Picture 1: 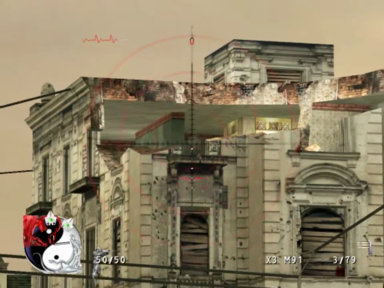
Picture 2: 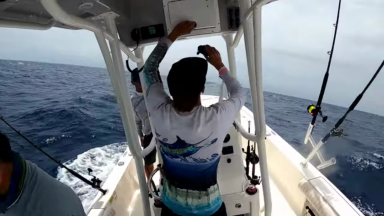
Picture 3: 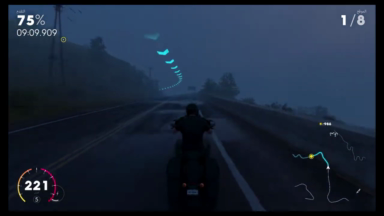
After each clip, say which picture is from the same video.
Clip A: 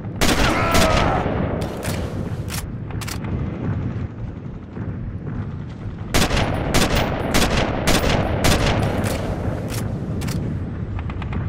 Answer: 1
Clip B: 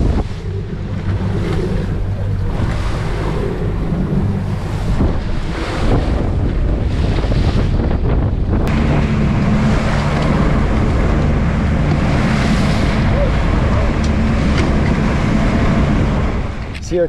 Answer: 2